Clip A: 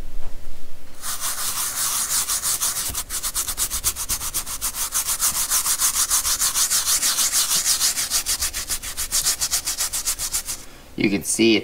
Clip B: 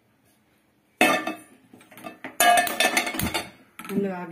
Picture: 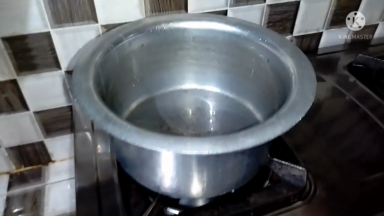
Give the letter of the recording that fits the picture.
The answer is B